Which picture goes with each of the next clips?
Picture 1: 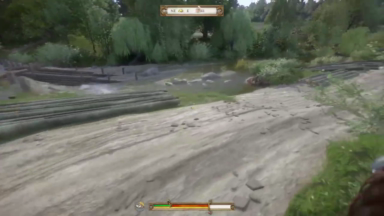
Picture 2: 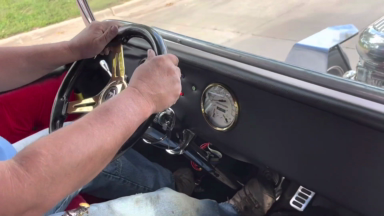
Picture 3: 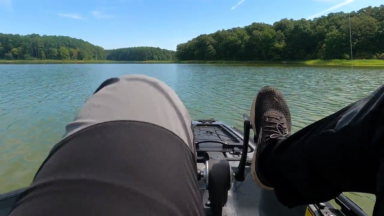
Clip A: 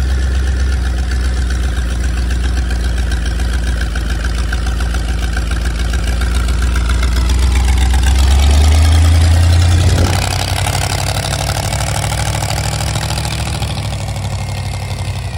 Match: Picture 2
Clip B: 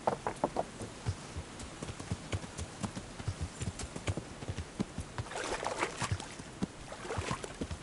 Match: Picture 1